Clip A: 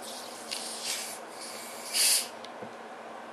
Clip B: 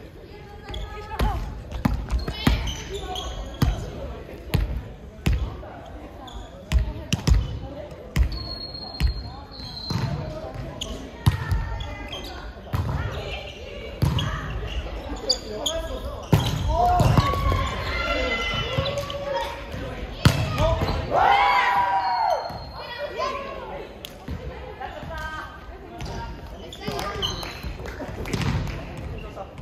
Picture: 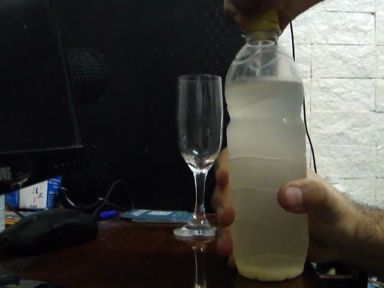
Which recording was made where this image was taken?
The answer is A